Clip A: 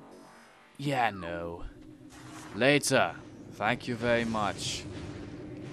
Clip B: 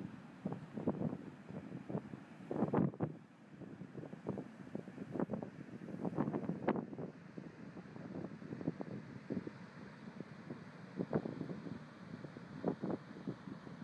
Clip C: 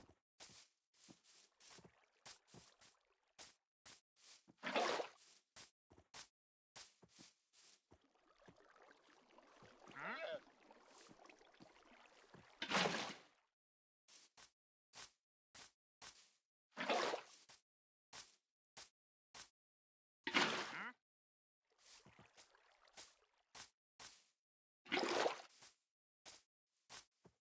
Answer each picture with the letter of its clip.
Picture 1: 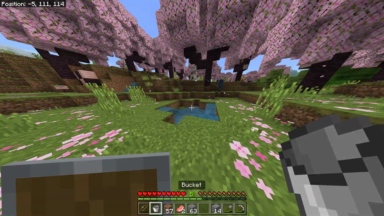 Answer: C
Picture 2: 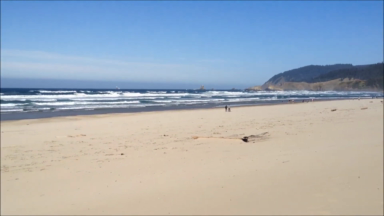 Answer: B